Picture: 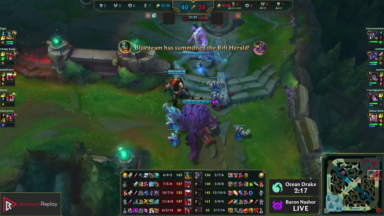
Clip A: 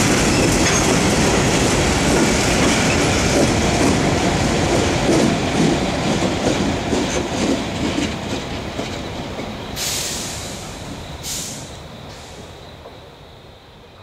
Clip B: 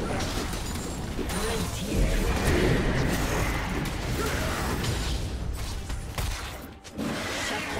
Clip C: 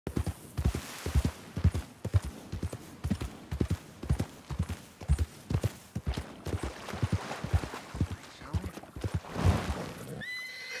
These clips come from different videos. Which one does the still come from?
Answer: B